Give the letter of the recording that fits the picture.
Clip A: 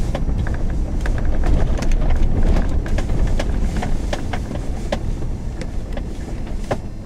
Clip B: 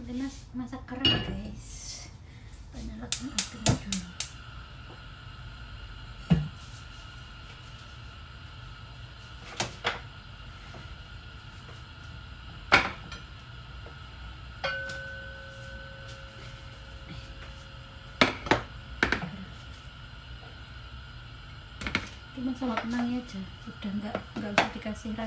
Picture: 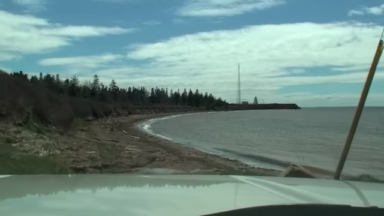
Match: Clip A